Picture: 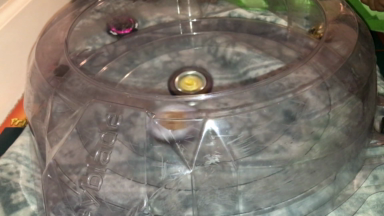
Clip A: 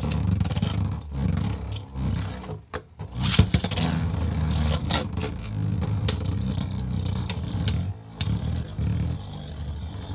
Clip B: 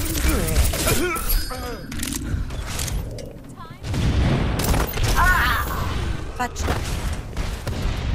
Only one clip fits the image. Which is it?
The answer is A